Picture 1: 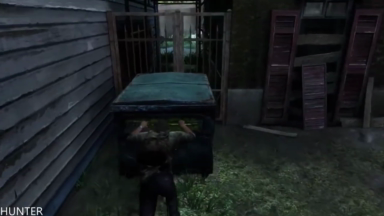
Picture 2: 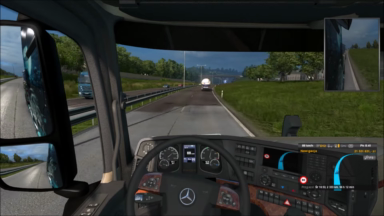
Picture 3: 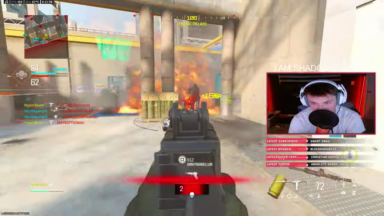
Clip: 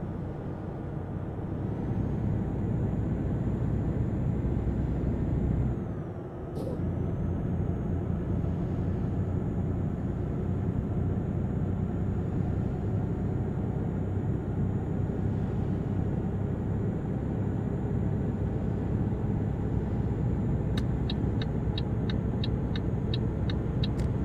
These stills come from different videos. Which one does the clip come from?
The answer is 2